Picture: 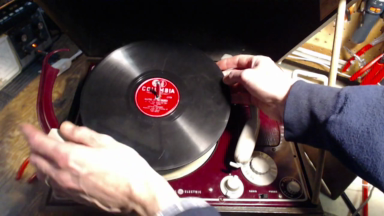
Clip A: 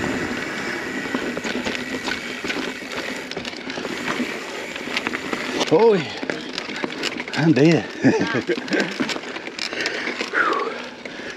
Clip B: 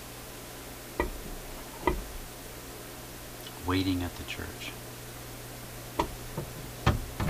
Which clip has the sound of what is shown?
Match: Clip B